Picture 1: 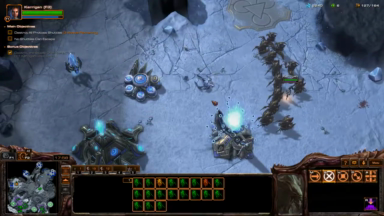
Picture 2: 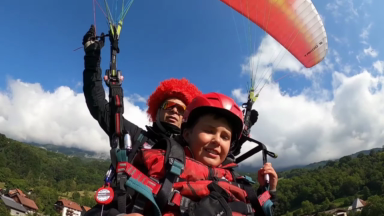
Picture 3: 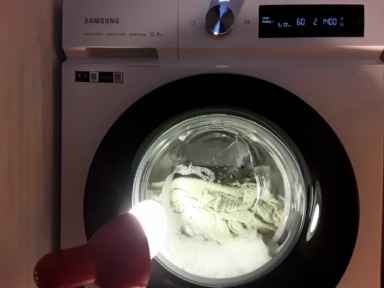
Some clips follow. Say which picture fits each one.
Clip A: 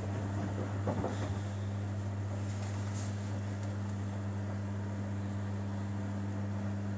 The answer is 3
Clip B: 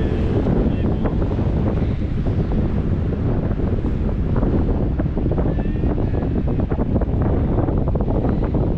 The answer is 2